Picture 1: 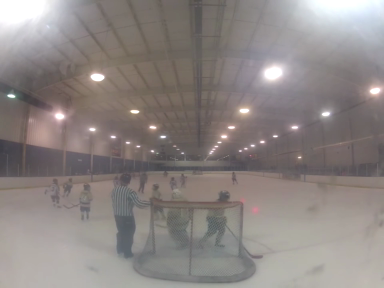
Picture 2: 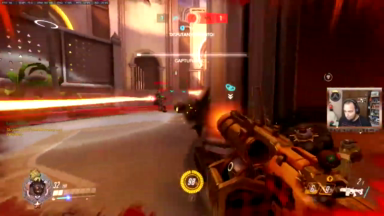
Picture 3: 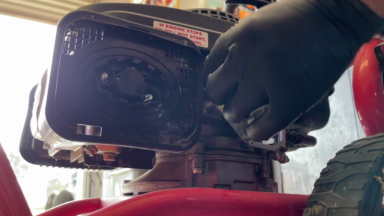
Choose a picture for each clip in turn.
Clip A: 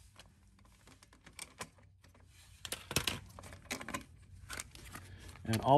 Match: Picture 3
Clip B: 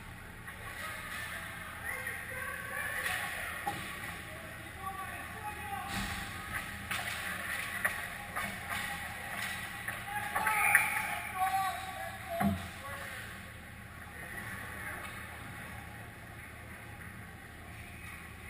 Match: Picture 1